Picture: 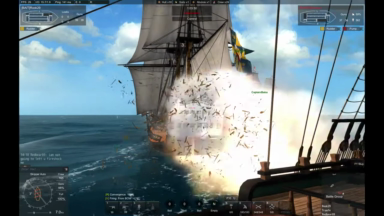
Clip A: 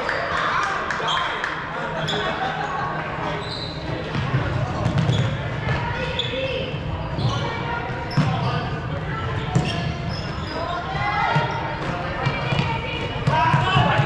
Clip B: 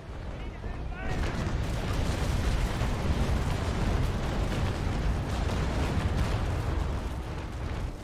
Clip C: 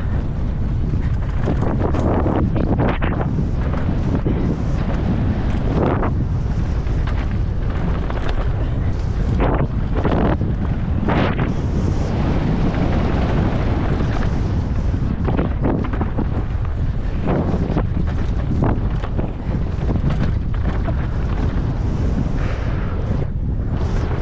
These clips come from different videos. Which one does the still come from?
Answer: B